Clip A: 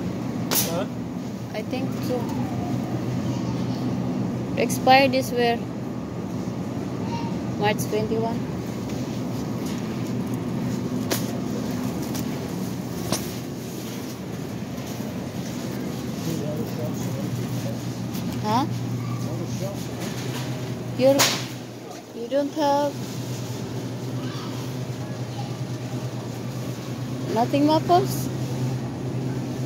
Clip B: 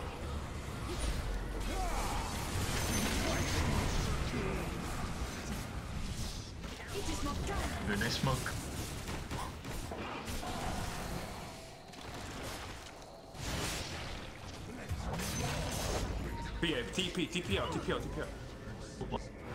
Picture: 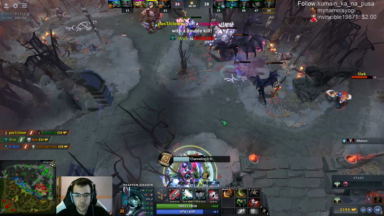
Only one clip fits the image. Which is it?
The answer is B